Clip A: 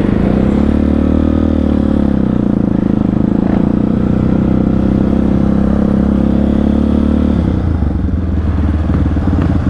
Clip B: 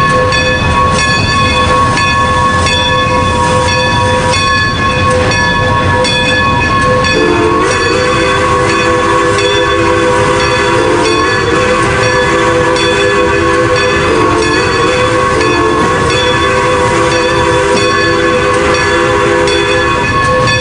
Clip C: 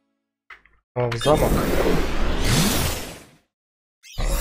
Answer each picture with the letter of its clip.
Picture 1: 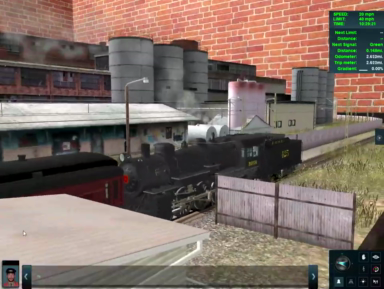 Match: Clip B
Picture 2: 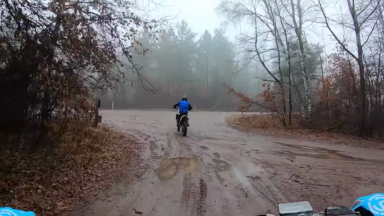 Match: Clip A